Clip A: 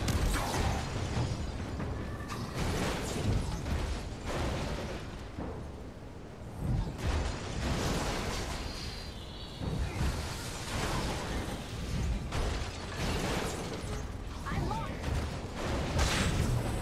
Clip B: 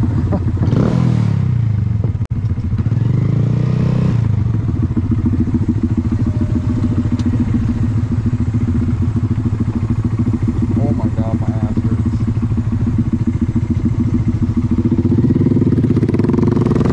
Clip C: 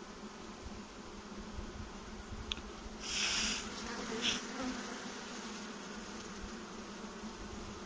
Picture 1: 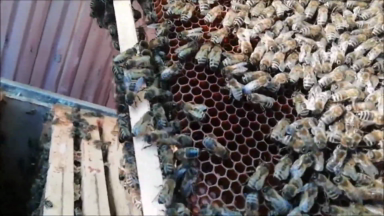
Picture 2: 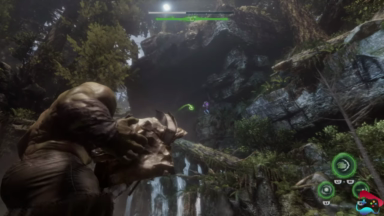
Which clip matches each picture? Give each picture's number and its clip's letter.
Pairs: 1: C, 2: A